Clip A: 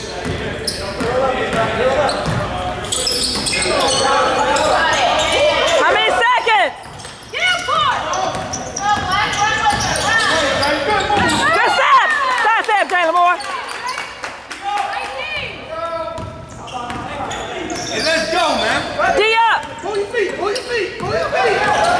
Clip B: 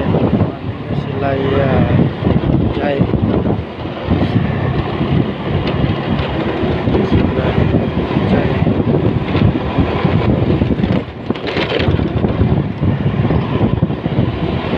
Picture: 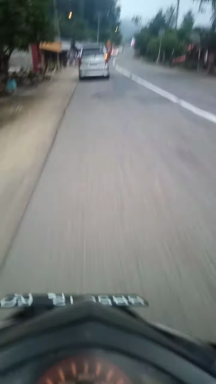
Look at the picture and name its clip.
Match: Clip B